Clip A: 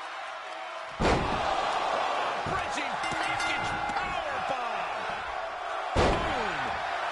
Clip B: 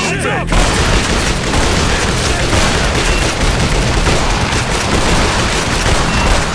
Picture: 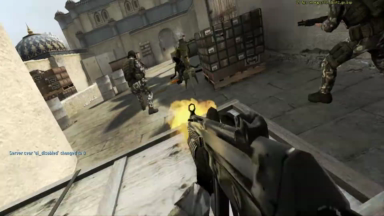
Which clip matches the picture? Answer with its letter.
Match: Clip B